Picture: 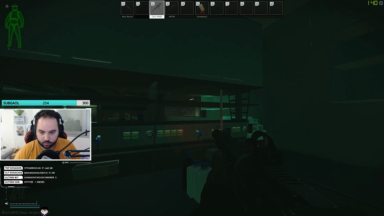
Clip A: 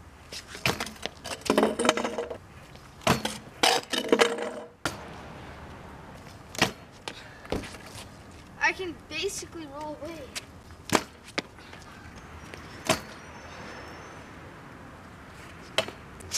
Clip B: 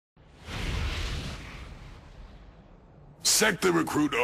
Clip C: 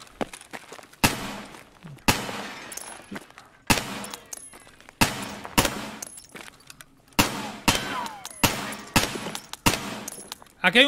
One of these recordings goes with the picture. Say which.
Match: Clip C